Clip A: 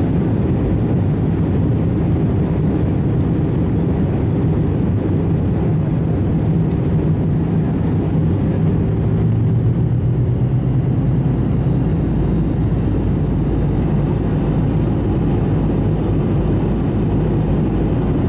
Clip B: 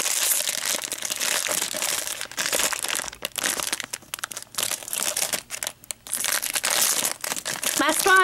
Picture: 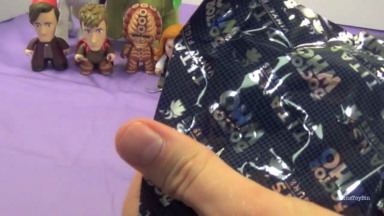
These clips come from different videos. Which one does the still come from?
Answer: B